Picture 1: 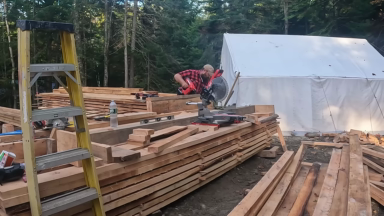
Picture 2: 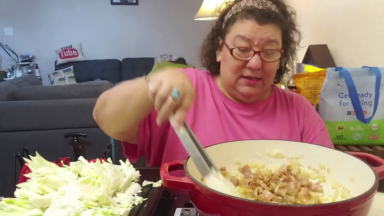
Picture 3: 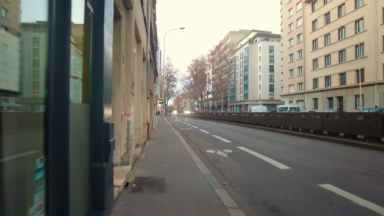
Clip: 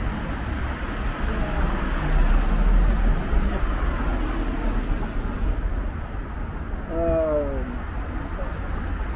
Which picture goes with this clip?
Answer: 3